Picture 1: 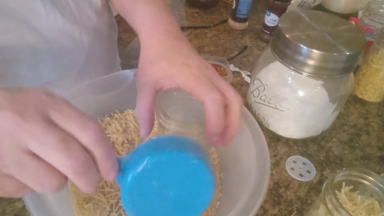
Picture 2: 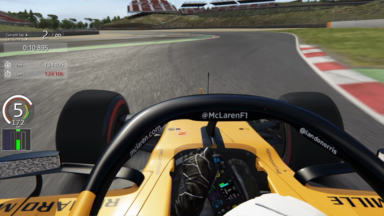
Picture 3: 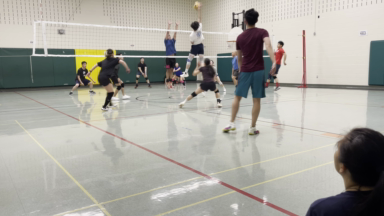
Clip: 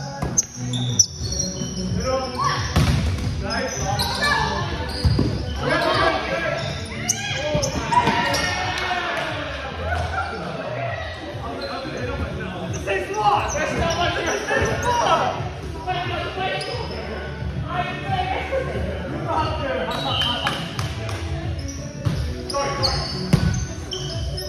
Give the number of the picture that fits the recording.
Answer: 3